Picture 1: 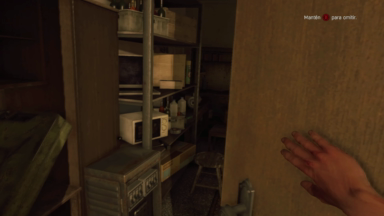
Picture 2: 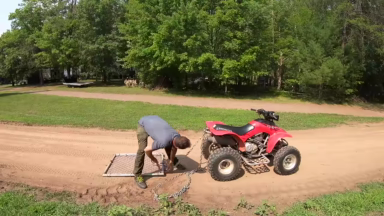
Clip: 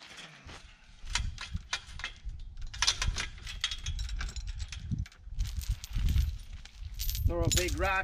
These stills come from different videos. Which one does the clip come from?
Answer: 2